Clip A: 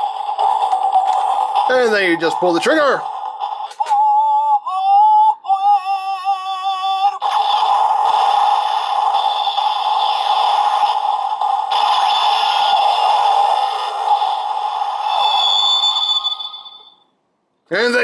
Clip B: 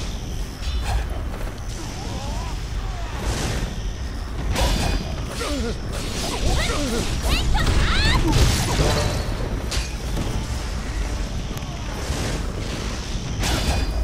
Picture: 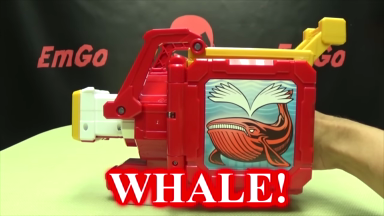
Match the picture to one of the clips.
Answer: A